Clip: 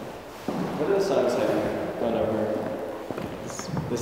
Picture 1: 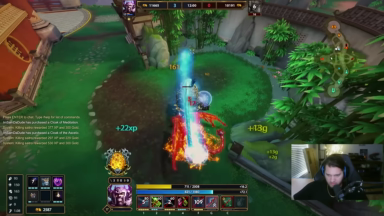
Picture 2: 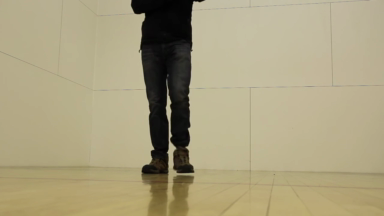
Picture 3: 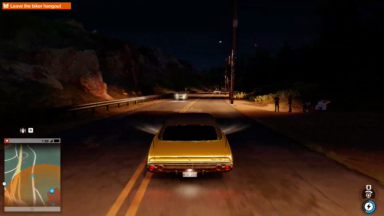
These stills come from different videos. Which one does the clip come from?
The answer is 2